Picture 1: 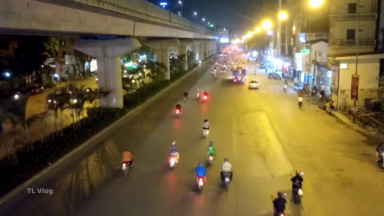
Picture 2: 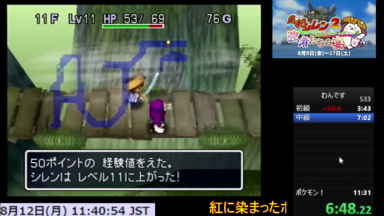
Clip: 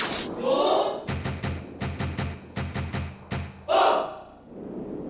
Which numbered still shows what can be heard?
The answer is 2